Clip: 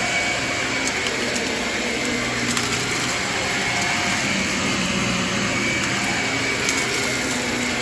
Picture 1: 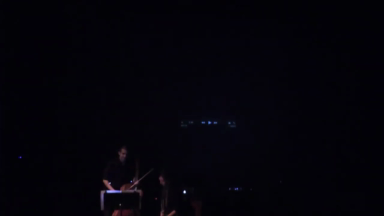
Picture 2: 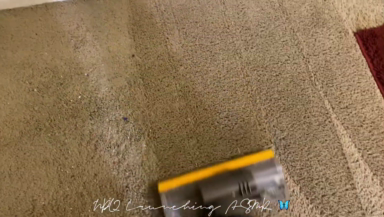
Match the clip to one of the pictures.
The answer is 2